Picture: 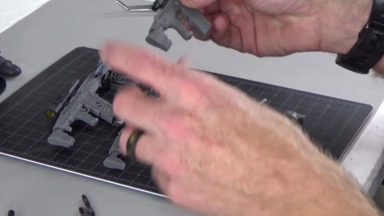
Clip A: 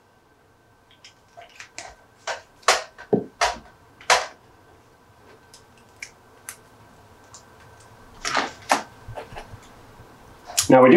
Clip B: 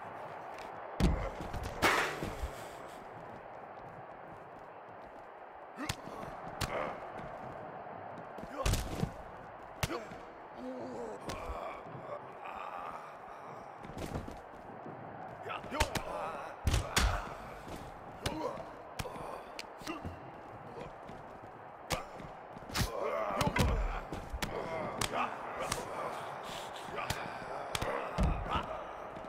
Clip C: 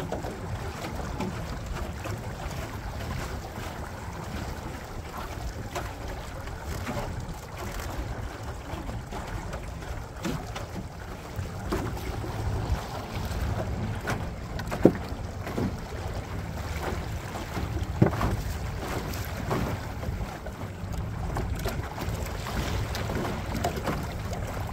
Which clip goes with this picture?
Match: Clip A